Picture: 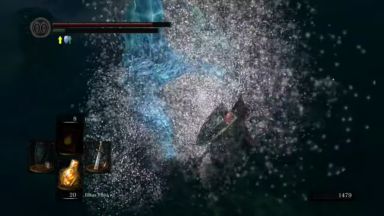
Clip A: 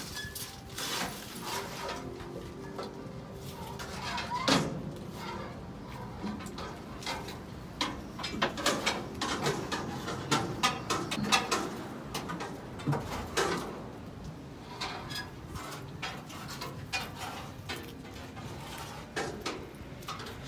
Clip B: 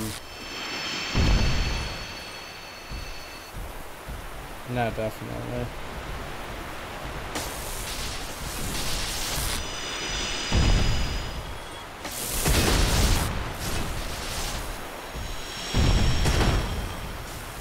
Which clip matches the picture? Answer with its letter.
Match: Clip B